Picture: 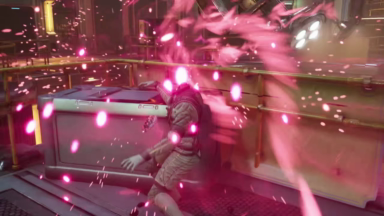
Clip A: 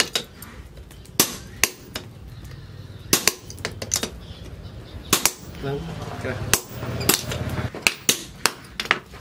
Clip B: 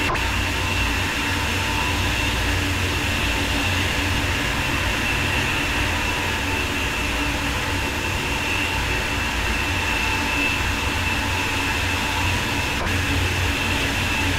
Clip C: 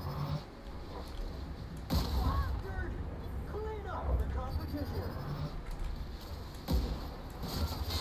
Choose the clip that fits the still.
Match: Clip C